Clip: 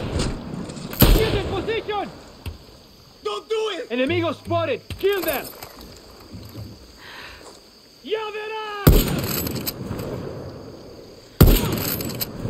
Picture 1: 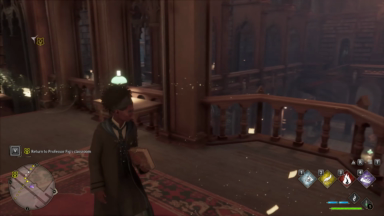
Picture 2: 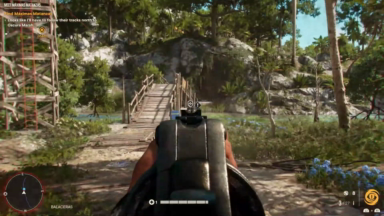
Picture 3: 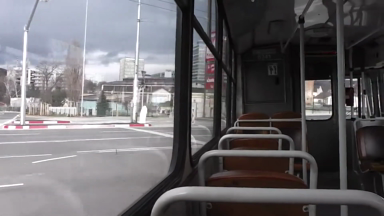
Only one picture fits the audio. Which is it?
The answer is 2